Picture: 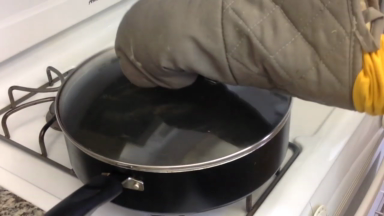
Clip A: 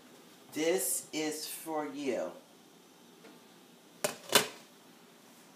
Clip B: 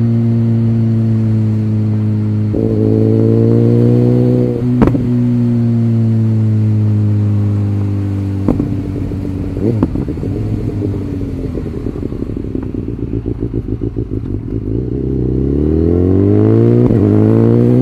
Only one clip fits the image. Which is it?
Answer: A